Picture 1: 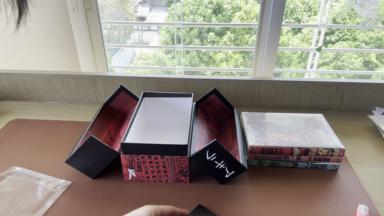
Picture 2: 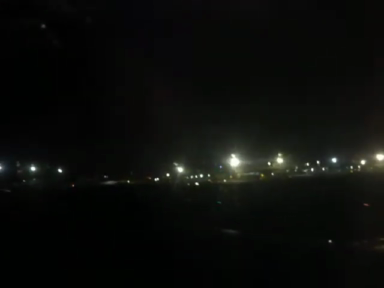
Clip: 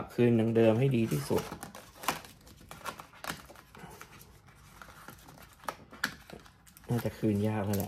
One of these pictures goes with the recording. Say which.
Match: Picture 1